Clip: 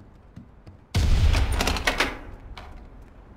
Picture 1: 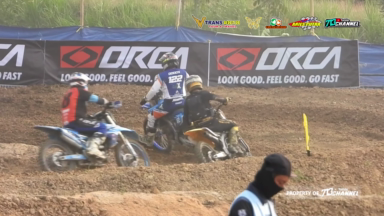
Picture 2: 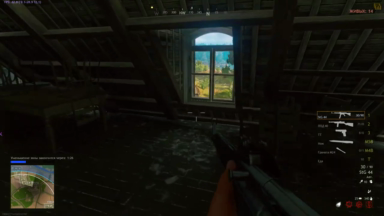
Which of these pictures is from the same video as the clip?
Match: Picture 2